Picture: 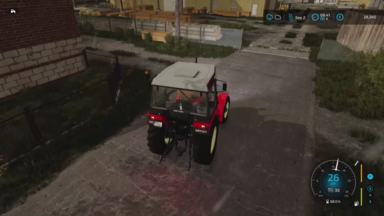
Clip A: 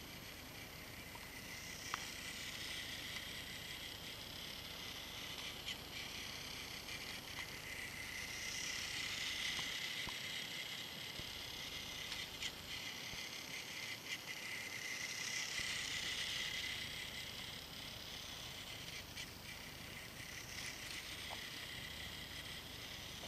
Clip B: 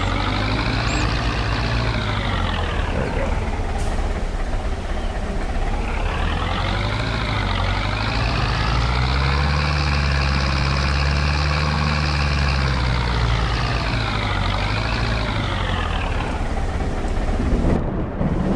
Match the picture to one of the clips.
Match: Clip B